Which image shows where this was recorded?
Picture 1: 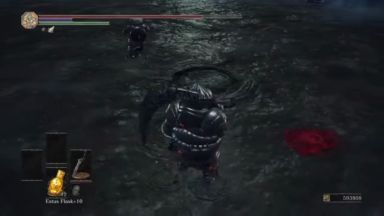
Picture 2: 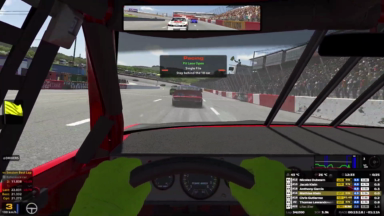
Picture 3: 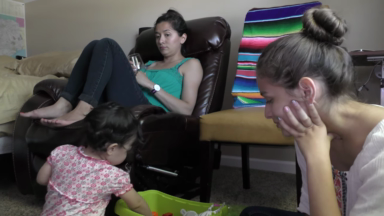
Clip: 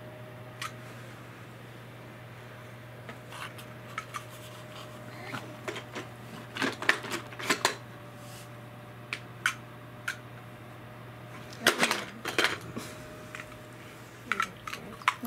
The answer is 3